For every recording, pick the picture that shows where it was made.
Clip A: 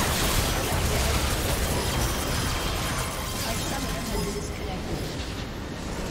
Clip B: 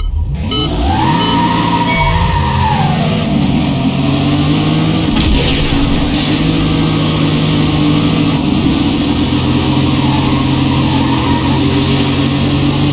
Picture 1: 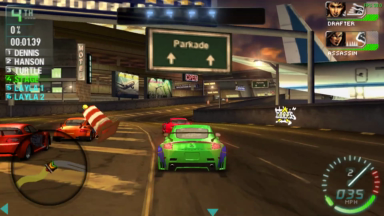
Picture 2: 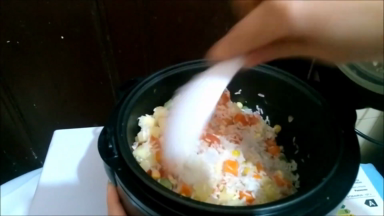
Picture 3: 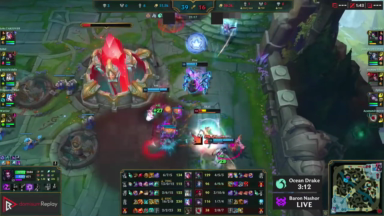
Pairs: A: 3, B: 1